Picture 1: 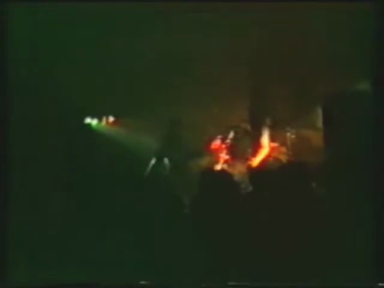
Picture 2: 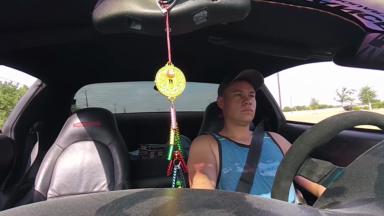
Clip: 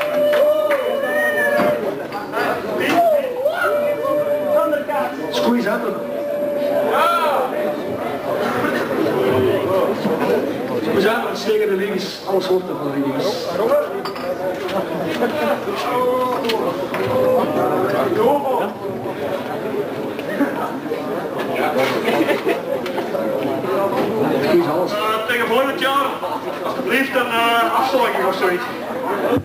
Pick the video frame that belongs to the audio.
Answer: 1